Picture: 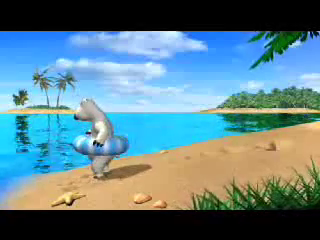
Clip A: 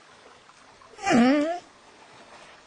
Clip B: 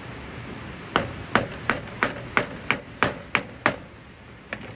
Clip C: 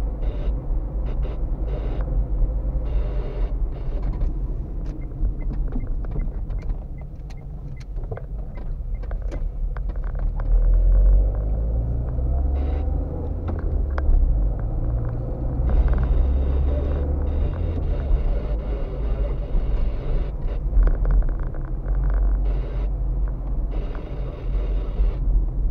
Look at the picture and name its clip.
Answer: A